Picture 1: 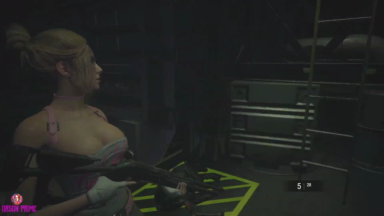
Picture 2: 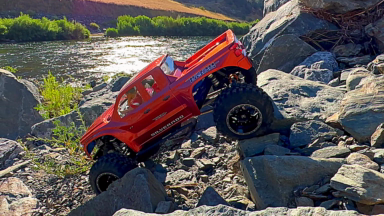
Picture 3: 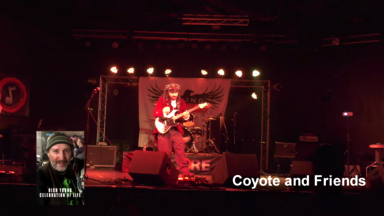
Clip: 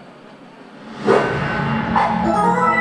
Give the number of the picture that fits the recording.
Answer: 3